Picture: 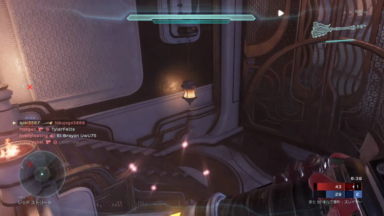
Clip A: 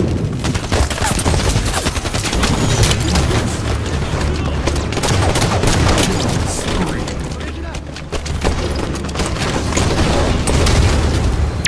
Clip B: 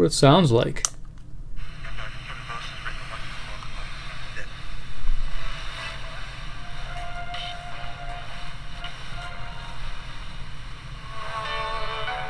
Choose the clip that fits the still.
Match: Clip A